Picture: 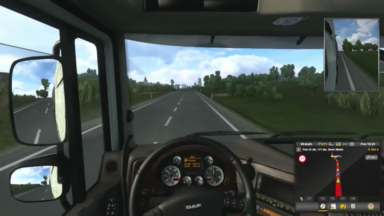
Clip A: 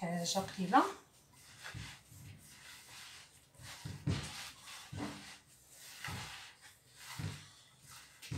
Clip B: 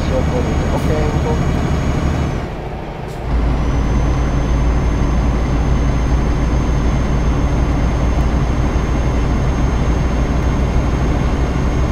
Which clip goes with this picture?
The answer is B